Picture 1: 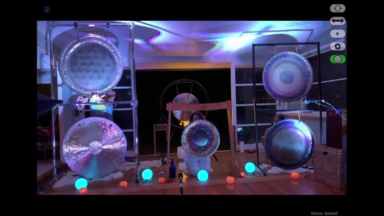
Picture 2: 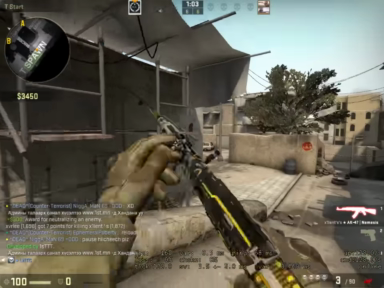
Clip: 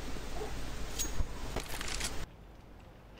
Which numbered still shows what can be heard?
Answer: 2